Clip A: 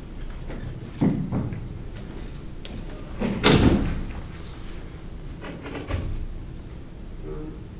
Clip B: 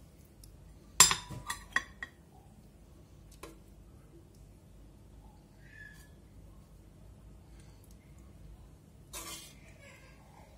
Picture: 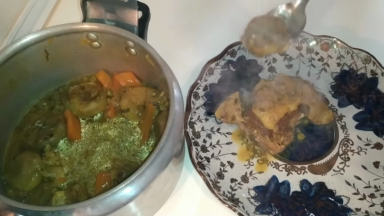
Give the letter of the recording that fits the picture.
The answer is B